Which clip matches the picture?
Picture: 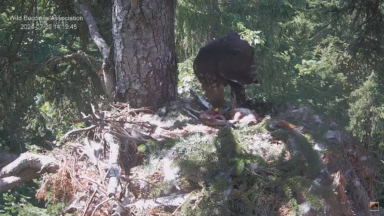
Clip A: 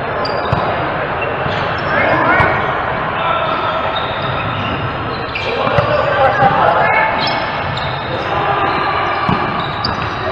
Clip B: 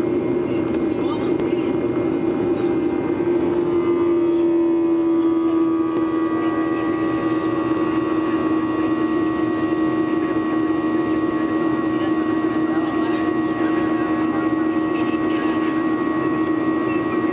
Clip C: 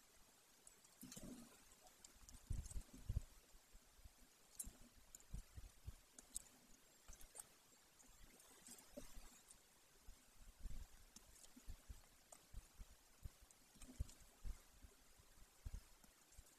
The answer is C